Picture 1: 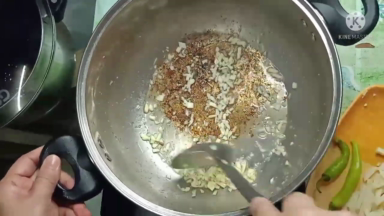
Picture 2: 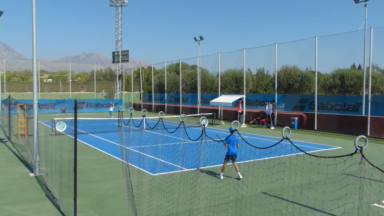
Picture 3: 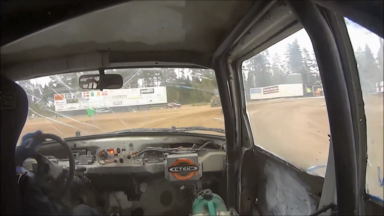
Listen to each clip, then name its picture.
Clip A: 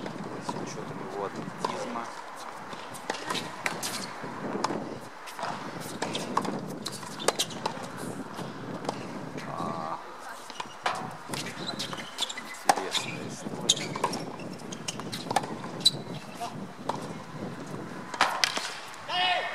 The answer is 2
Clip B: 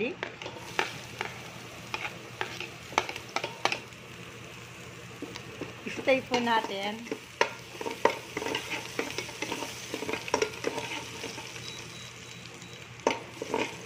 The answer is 1